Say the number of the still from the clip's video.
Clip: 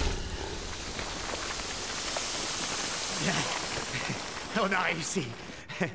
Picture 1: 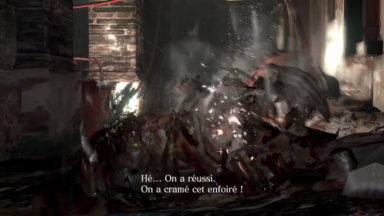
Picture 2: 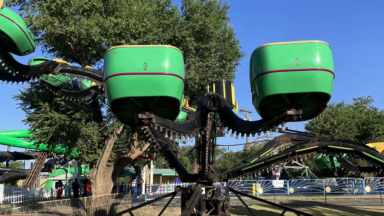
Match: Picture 1